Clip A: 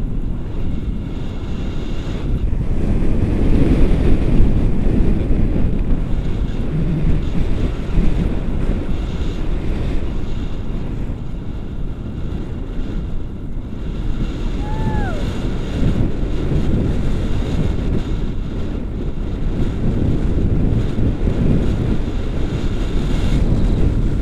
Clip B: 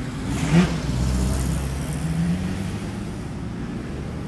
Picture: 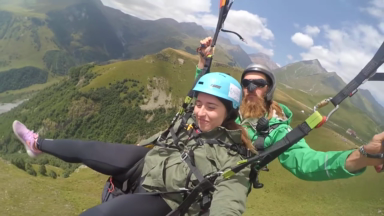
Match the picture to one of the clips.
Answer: A